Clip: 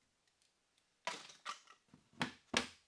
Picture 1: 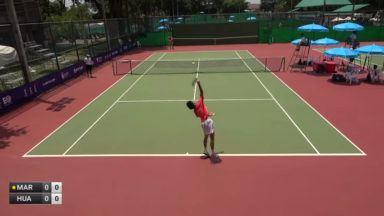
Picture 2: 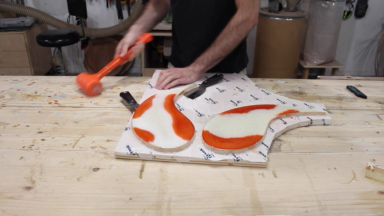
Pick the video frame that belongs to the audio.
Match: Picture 2